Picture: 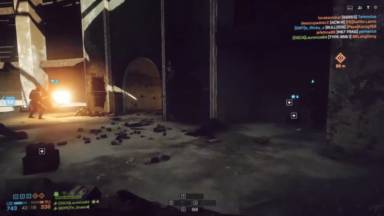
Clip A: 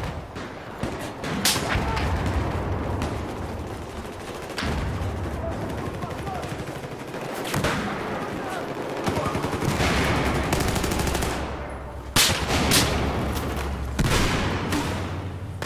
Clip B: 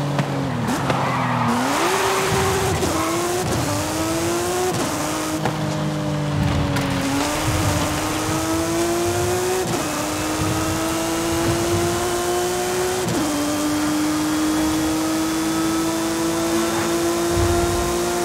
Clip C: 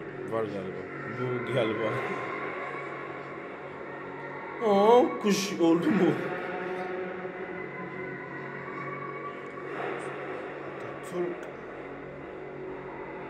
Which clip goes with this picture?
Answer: A